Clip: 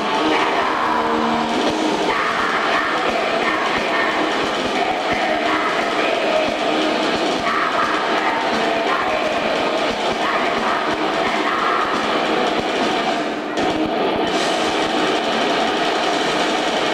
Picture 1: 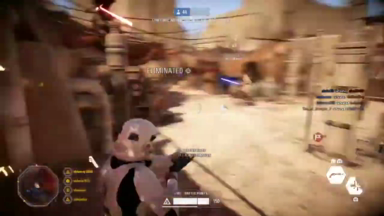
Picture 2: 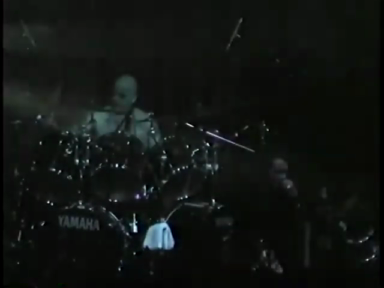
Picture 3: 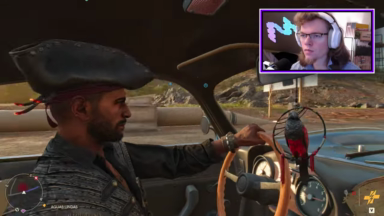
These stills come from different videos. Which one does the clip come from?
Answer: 2